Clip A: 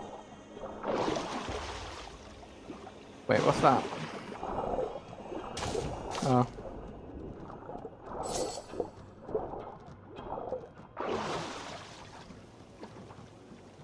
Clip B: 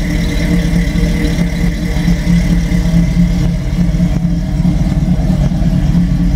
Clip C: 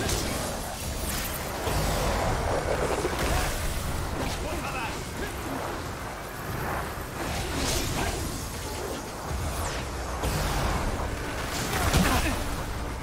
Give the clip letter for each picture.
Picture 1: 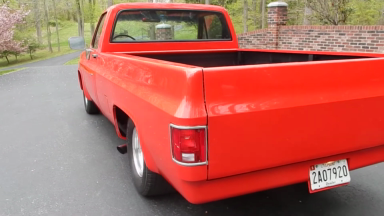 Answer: B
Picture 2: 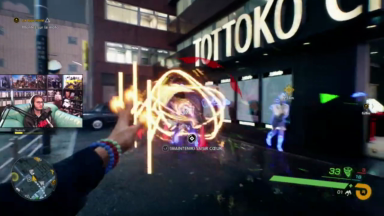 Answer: C